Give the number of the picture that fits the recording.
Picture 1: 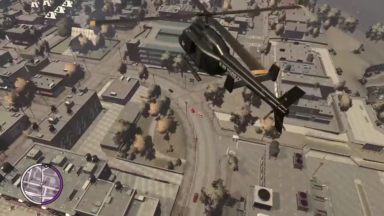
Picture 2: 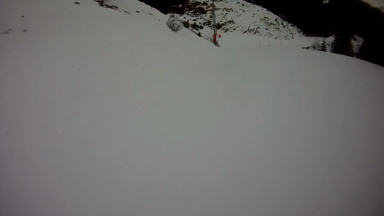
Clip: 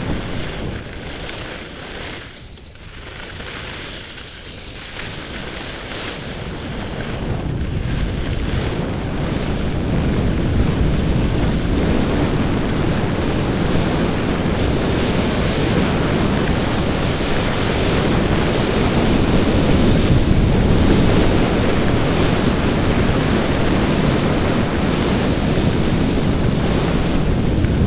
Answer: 2